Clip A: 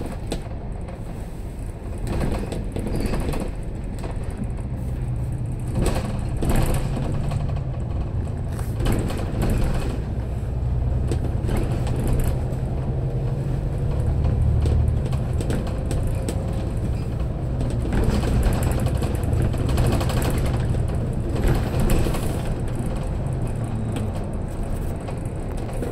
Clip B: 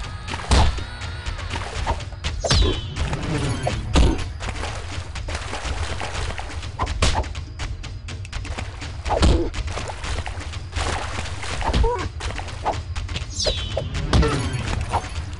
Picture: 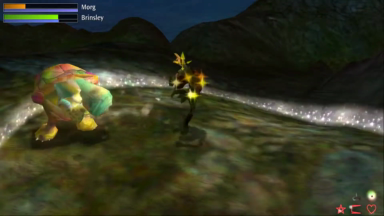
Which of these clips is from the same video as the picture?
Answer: B